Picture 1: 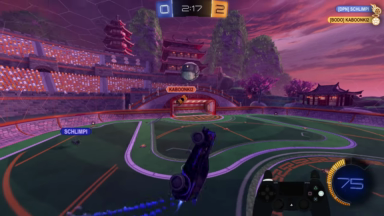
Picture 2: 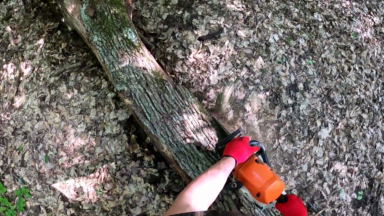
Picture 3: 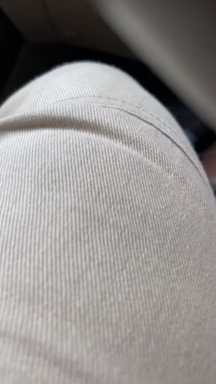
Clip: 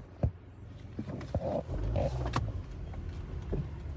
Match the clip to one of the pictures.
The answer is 3